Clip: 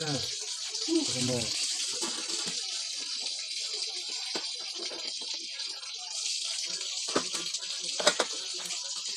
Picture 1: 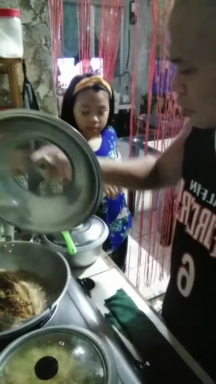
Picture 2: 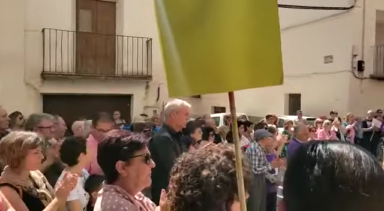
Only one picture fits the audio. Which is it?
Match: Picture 1